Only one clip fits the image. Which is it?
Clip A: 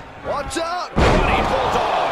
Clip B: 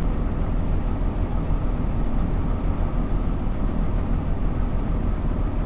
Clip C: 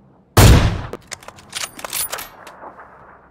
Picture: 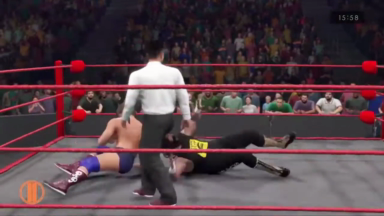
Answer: A